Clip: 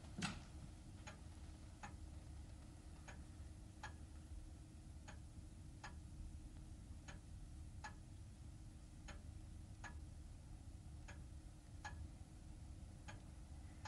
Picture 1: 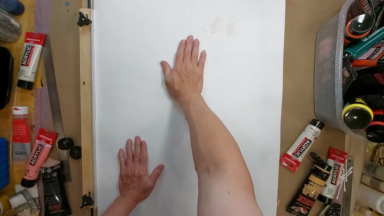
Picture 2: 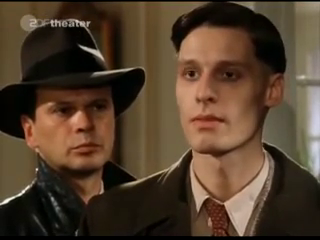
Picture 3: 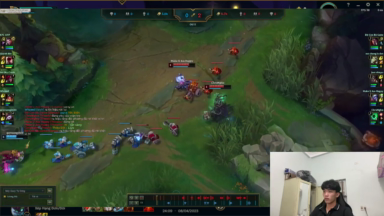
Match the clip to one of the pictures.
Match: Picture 2